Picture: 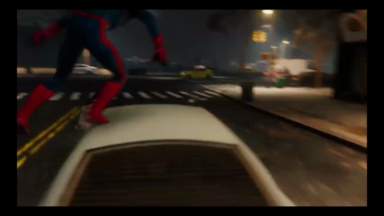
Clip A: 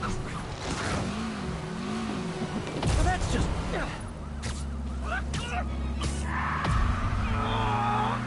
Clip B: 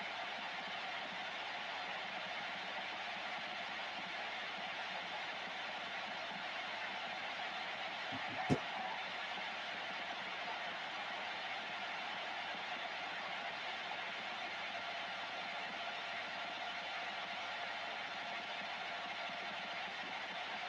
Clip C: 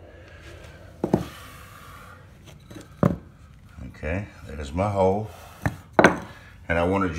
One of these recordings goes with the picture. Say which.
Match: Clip A